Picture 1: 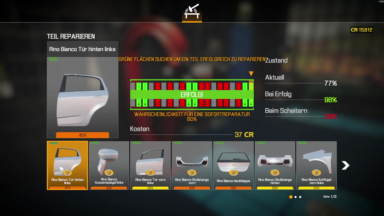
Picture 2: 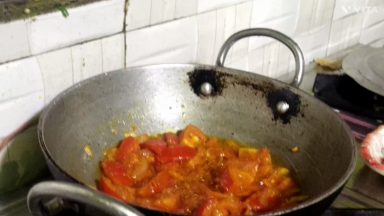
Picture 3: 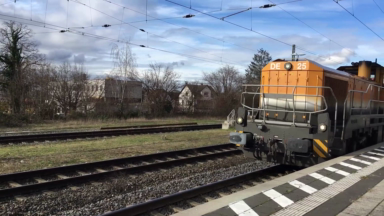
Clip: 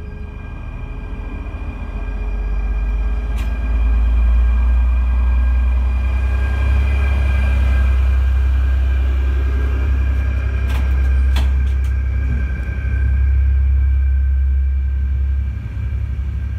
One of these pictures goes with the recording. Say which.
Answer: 3